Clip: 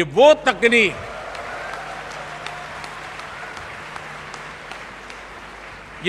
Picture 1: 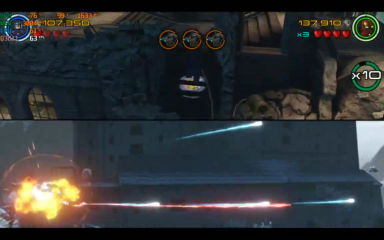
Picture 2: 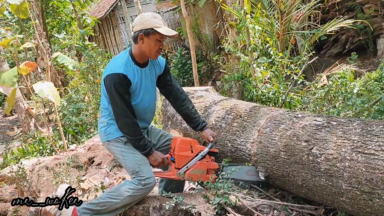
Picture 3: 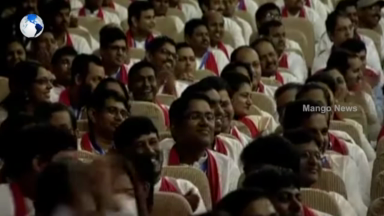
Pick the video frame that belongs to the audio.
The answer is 3